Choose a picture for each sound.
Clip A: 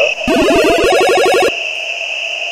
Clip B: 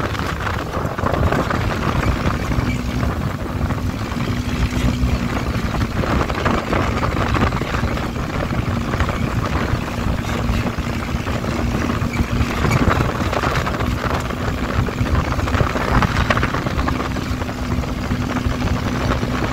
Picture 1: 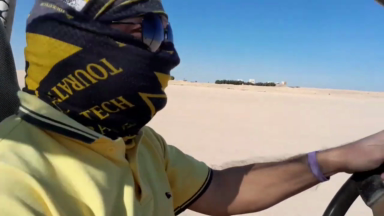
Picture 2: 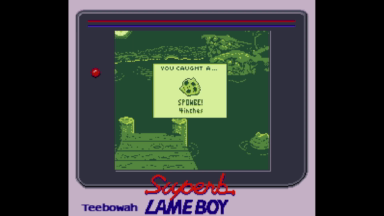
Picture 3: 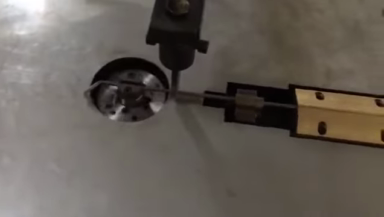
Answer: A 2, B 1